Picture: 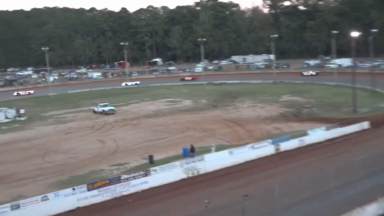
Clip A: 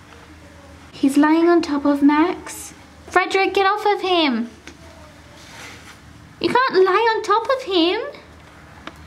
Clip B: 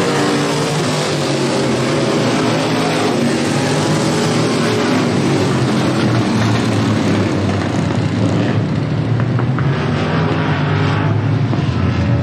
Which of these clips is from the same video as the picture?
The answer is B